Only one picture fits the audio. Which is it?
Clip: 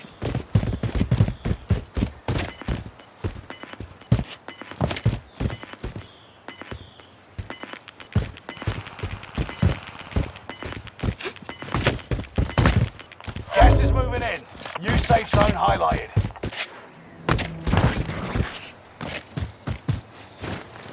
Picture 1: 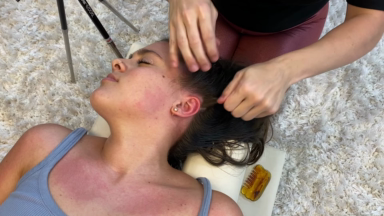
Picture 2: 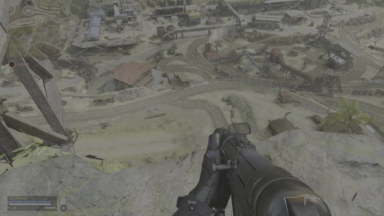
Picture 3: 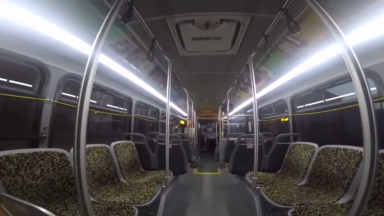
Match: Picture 2